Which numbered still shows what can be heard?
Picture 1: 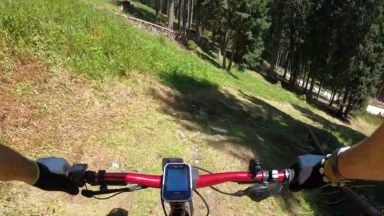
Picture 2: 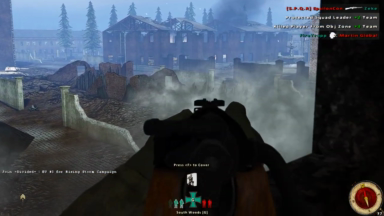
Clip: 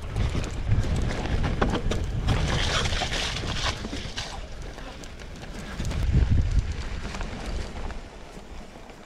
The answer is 1